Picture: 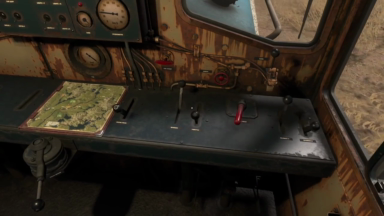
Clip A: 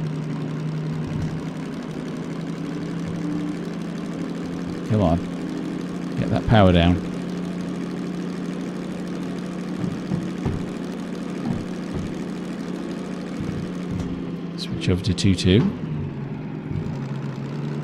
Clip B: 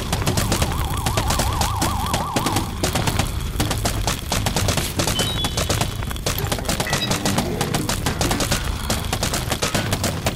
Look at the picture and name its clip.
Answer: A